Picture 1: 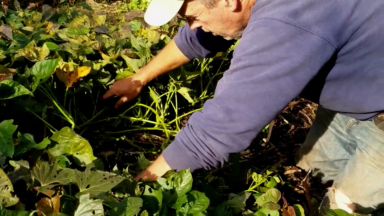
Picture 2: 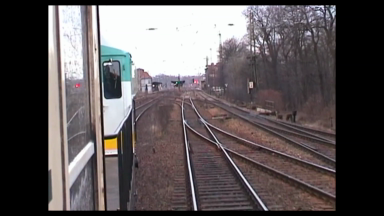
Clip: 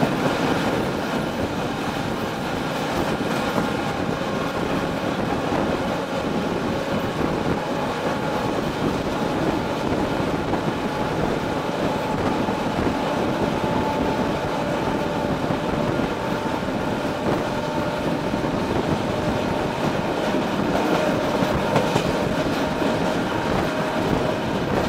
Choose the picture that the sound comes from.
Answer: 2